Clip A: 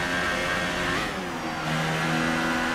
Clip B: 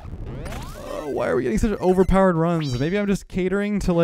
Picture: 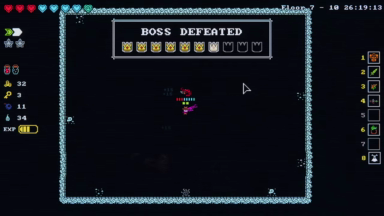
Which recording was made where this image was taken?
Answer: B